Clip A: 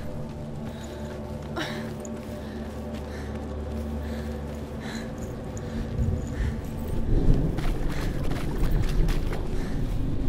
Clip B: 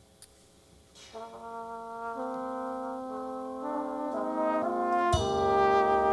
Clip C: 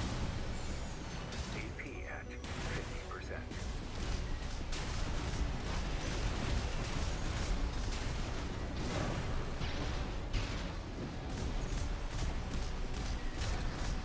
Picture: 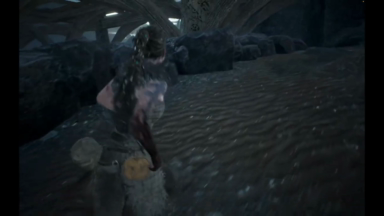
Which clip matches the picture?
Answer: A